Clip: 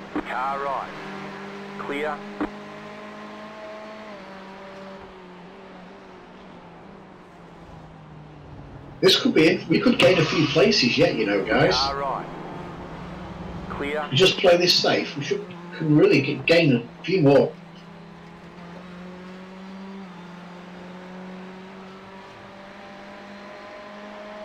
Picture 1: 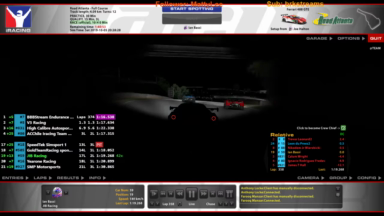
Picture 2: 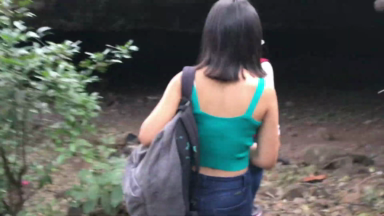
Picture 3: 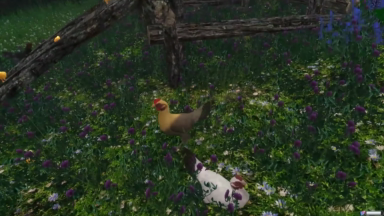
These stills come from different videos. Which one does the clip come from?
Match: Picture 1